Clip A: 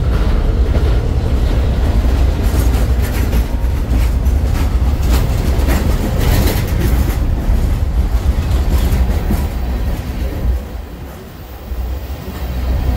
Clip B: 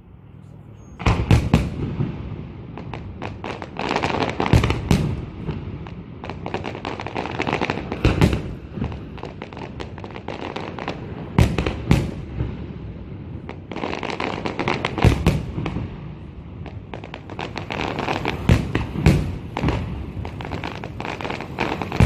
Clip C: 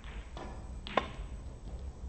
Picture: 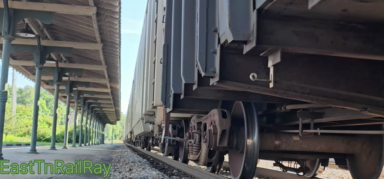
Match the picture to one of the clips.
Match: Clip A